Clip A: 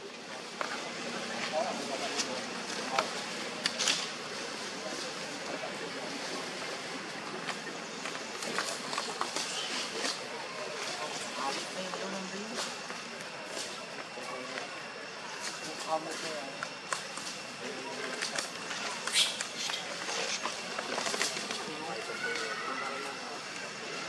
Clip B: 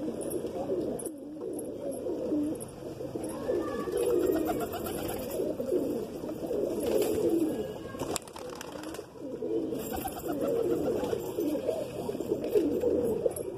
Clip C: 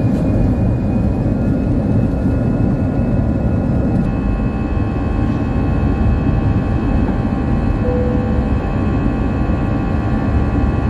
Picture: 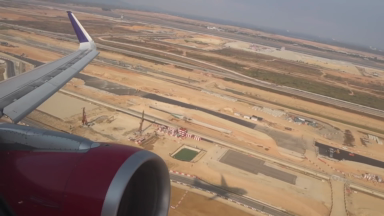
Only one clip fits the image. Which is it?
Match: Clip C